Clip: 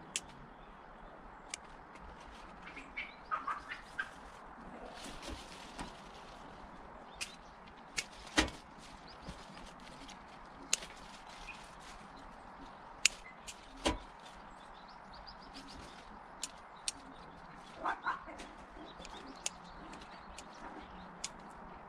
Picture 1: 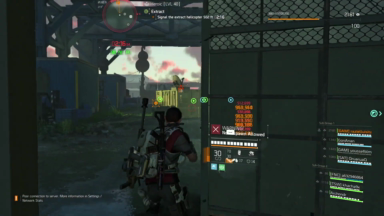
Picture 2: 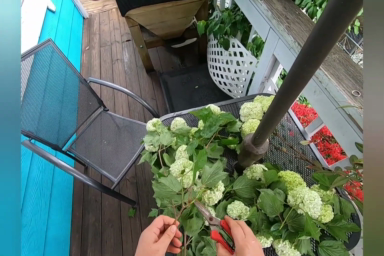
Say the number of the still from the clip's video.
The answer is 2